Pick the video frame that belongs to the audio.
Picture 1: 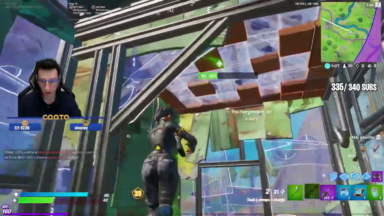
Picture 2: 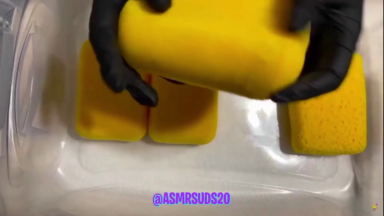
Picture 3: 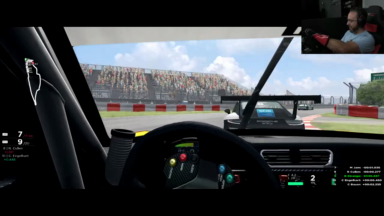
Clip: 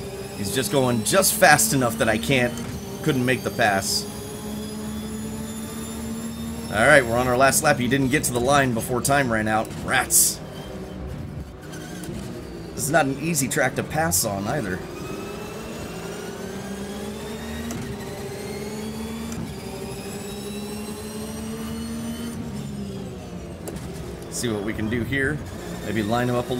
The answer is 3